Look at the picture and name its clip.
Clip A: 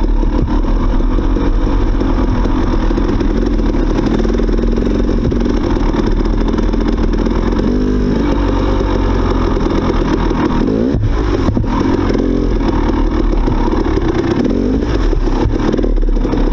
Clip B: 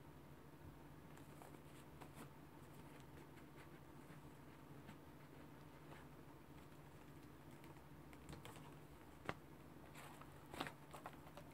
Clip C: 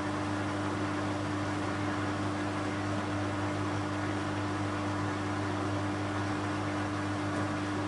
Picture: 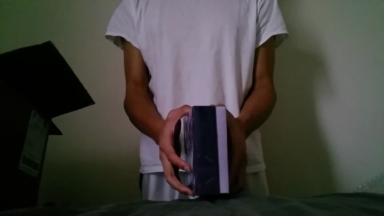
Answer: B